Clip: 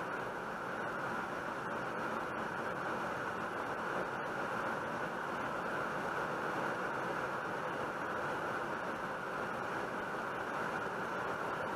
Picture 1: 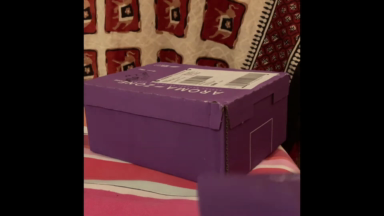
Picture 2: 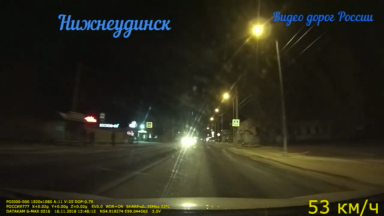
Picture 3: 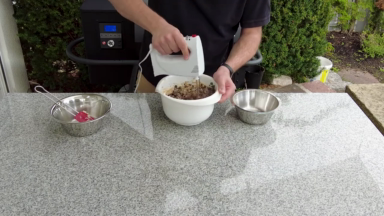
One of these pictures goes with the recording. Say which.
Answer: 2